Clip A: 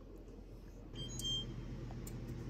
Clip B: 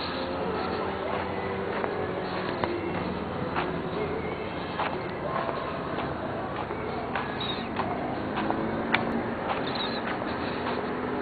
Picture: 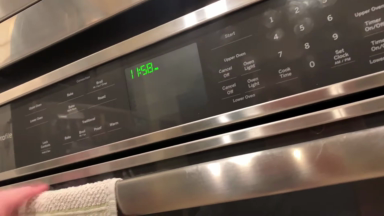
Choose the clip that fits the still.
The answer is A